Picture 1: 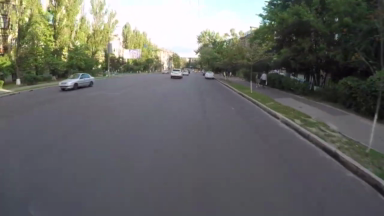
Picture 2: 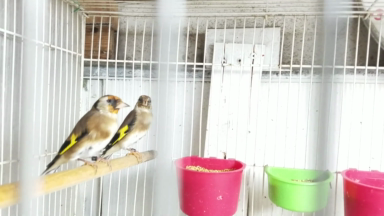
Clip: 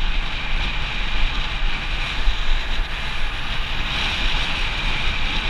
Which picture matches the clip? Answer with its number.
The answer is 1